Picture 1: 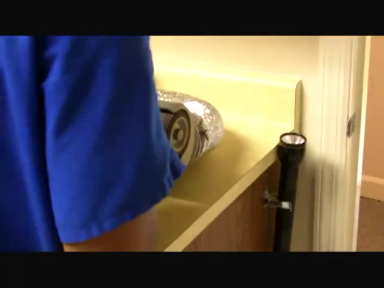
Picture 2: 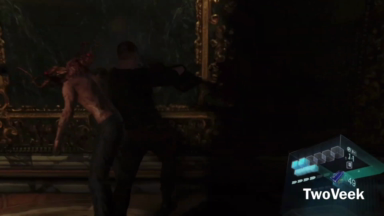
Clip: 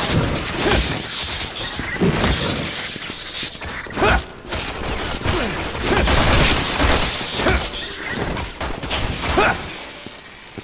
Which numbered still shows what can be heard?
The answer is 2